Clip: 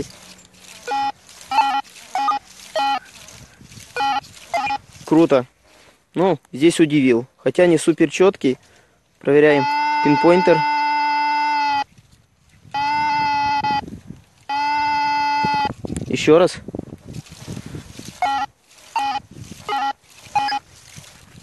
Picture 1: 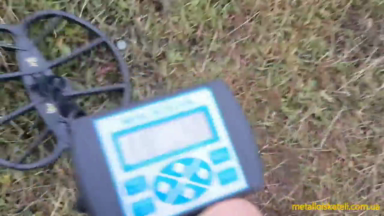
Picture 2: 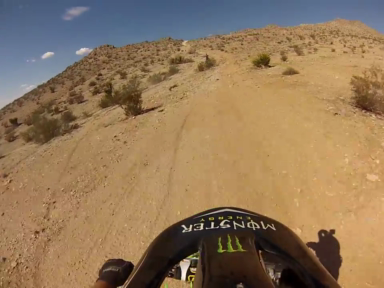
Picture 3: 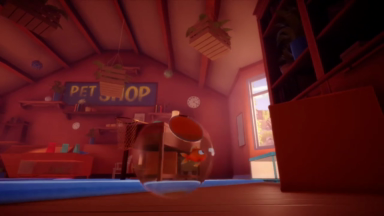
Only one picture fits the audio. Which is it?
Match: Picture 1